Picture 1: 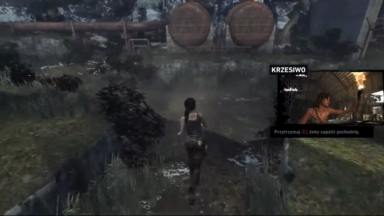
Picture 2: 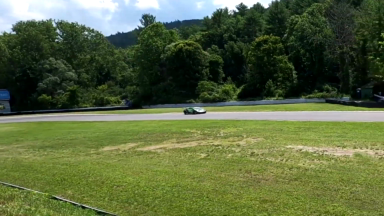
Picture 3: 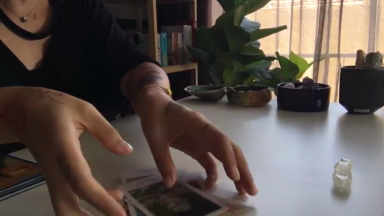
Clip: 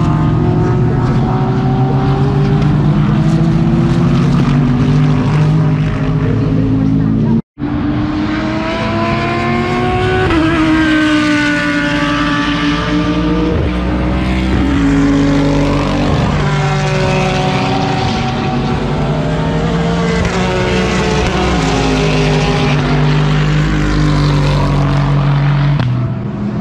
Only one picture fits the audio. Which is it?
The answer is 2